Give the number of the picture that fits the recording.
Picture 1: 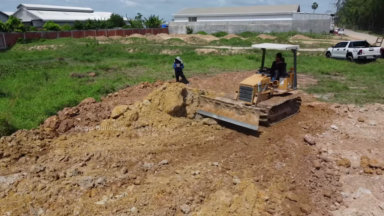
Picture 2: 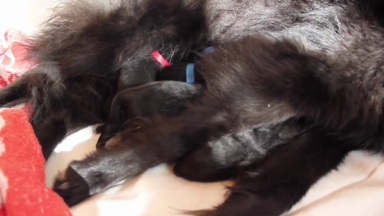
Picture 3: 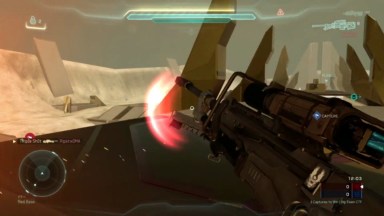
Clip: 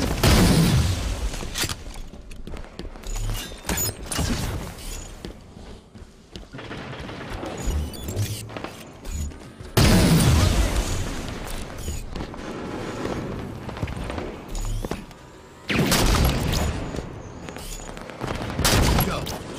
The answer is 3